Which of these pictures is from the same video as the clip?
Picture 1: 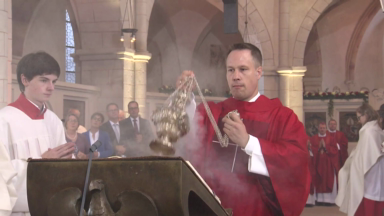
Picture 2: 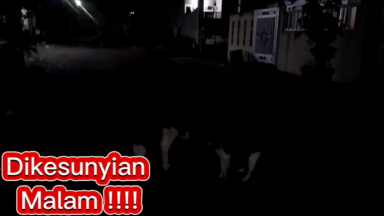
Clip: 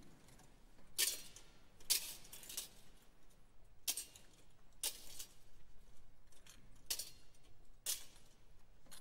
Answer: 1